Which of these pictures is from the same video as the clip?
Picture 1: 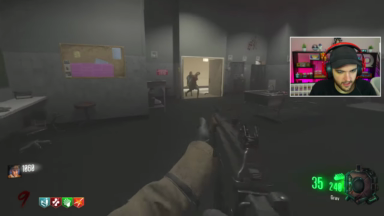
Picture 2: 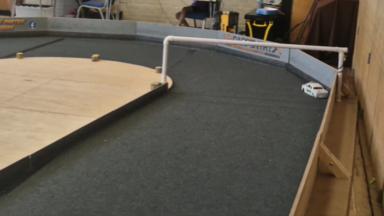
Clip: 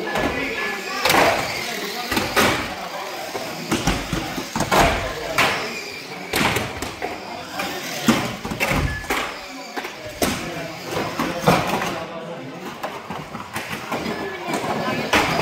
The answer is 2